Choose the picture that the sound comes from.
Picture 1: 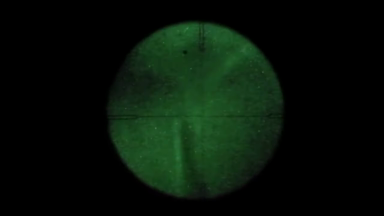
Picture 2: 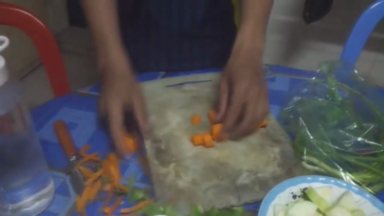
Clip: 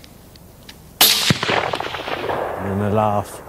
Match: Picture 1